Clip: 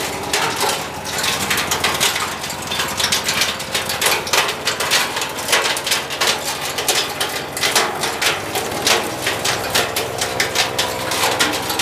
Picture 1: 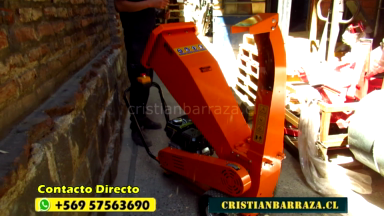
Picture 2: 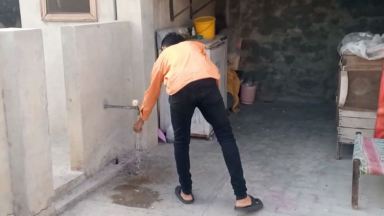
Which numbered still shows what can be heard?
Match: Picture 1